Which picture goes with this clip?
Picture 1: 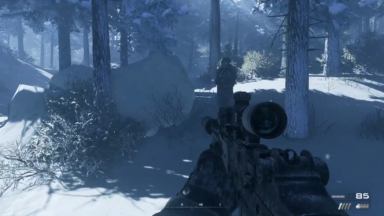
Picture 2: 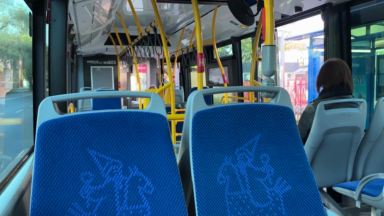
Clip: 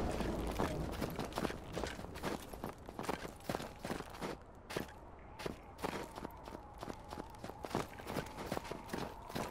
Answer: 1